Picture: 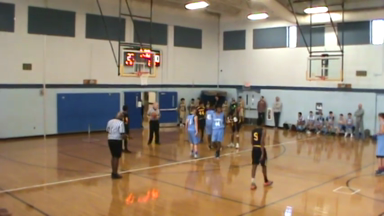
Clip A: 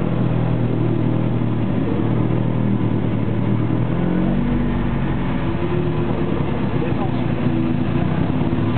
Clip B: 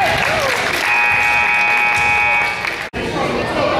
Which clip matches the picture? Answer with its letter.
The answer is B